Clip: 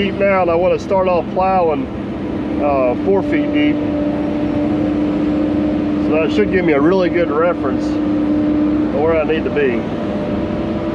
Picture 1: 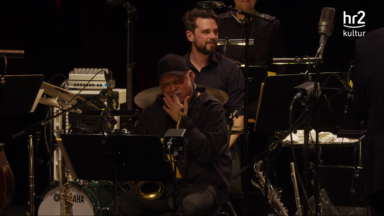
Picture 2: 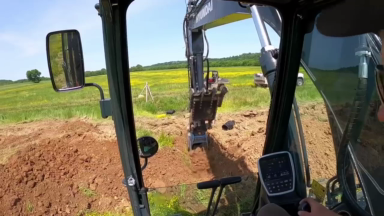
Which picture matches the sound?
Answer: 2